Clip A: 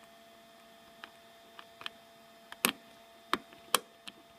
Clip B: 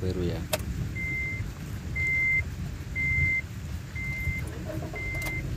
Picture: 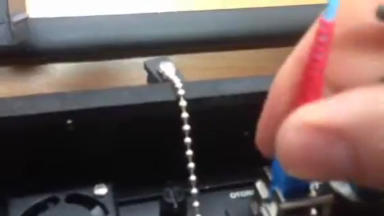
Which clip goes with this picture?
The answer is A